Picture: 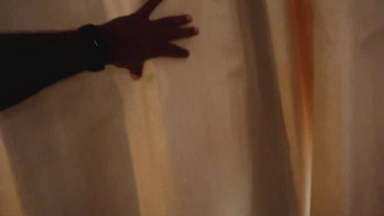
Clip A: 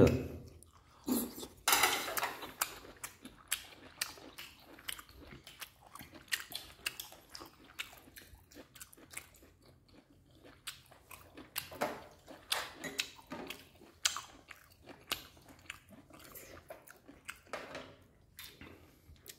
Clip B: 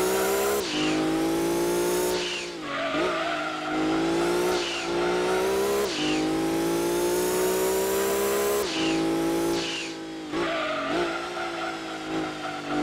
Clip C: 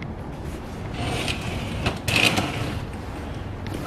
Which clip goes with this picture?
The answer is C